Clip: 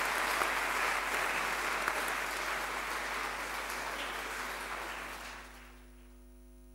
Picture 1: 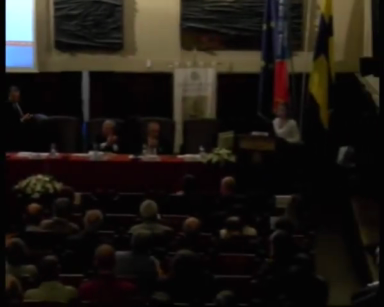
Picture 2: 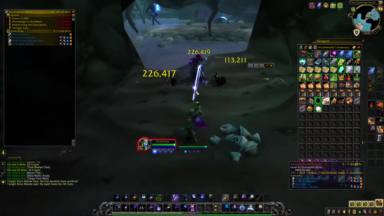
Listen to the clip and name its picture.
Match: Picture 1